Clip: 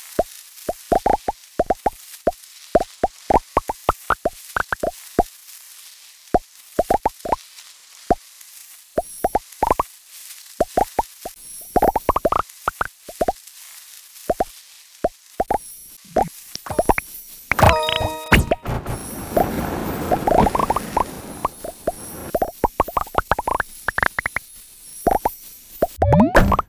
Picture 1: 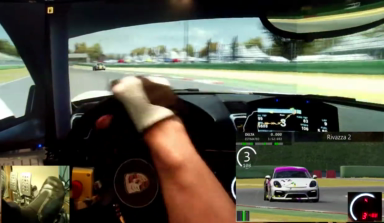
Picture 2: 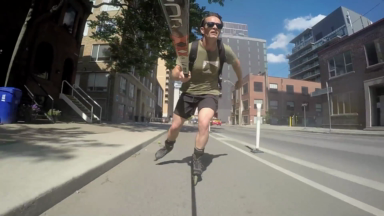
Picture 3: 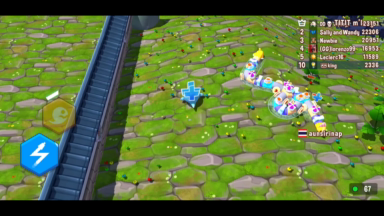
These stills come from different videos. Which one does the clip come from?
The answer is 3